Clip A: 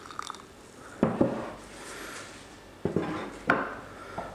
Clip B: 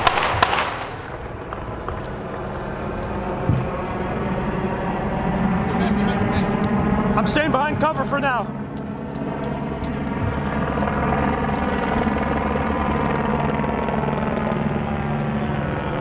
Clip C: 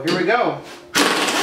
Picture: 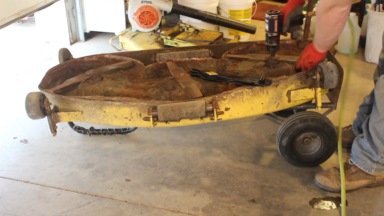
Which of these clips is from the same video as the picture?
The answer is C